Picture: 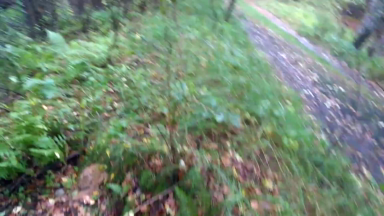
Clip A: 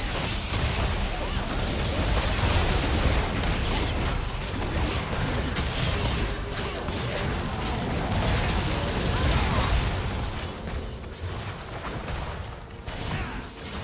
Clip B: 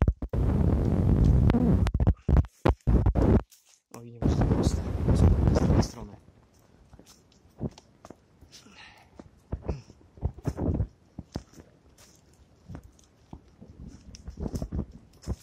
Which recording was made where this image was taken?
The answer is B